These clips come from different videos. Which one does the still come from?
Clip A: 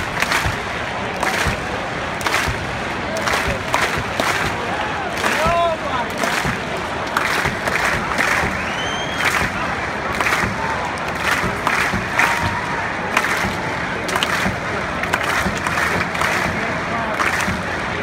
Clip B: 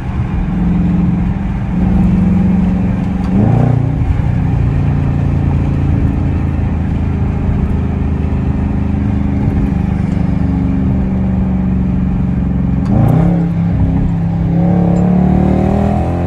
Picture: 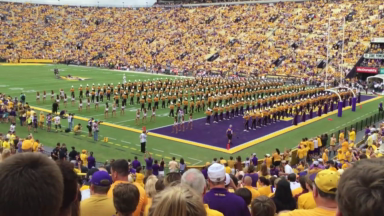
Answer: A